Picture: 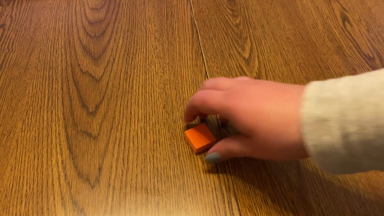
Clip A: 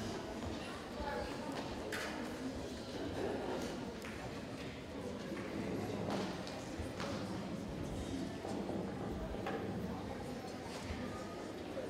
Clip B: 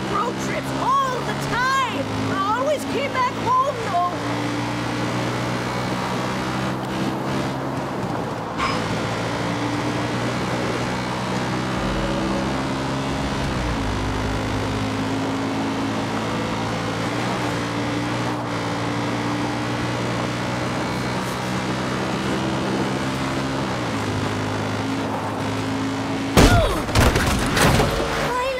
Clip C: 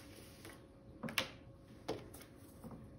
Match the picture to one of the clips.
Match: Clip C